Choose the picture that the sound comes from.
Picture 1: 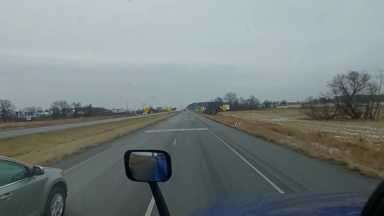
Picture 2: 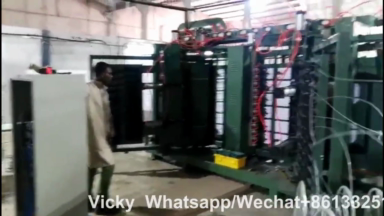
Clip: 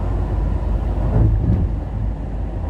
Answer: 1